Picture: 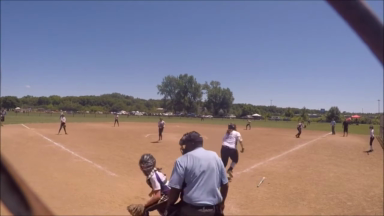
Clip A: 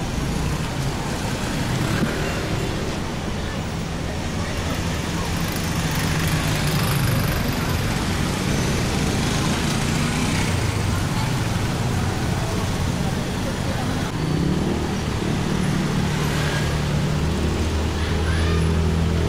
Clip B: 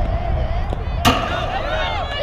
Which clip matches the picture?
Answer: B